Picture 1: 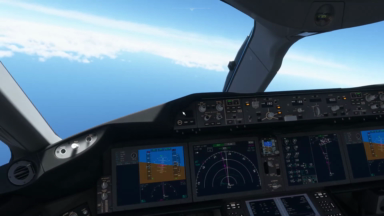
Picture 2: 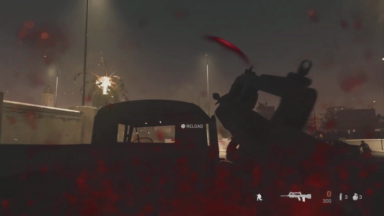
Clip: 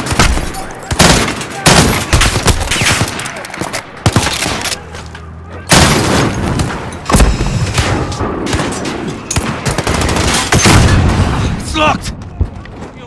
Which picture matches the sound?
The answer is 2